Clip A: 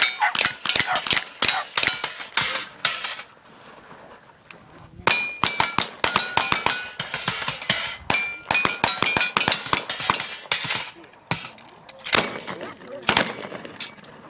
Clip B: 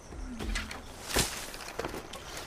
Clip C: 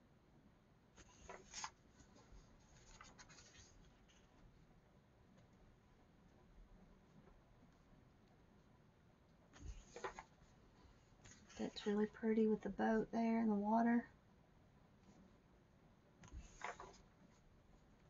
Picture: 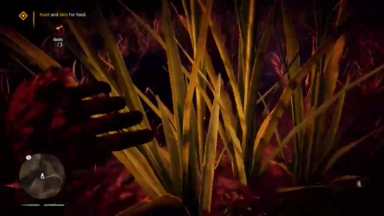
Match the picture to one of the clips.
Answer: B